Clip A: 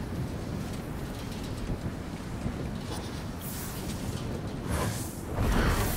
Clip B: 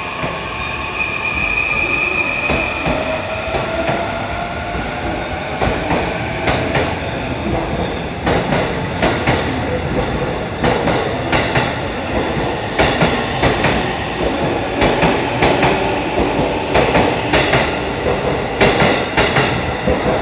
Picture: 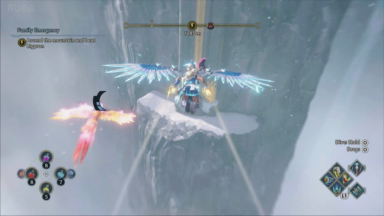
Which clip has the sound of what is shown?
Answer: A